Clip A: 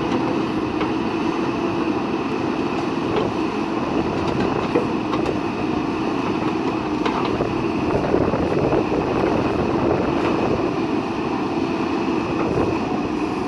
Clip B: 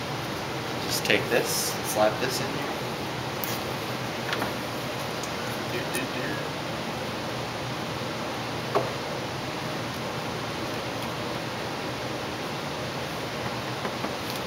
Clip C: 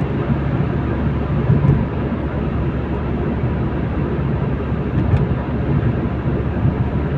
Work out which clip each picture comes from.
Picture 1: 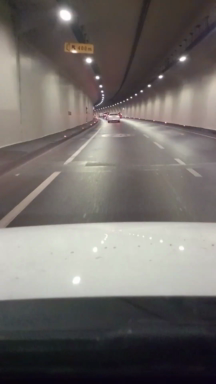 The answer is C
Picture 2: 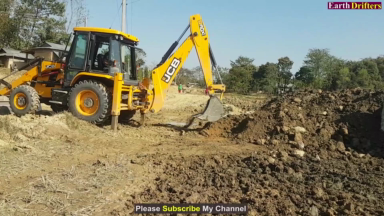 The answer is A